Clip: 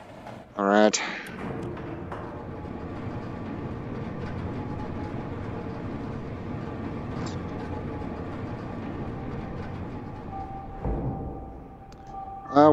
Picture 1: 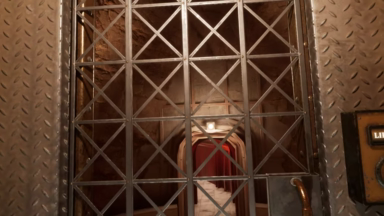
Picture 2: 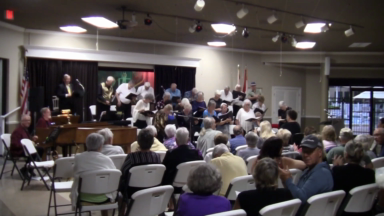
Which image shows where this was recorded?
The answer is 1